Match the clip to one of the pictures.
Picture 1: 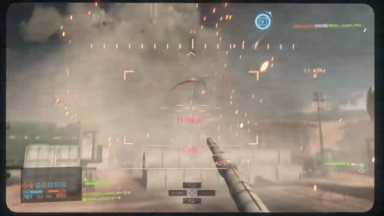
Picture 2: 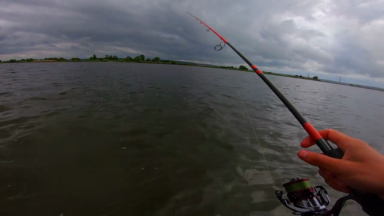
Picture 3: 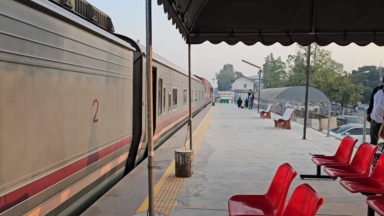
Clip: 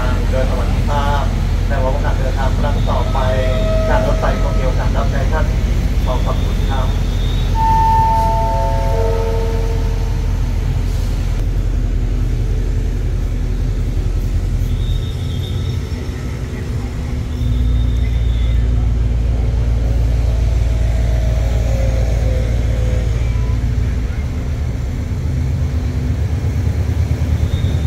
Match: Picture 3